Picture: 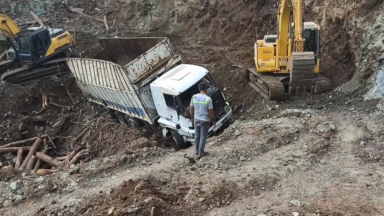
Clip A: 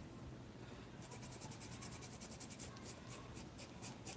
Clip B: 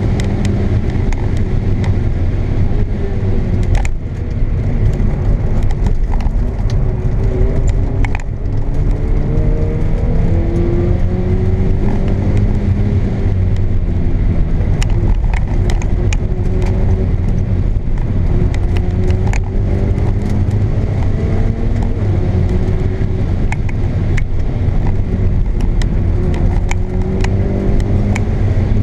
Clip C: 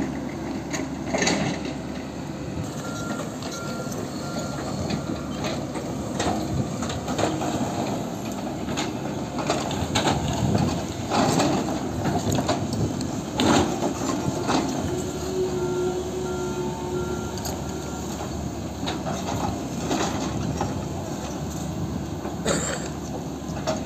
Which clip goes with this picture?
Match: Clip C